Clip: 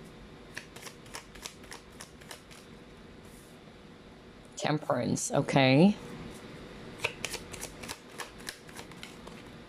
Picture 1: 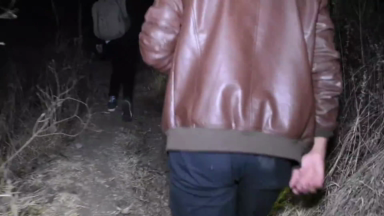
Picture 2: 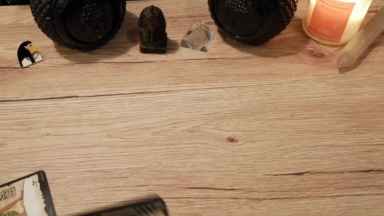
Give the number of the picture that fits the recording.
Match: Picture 2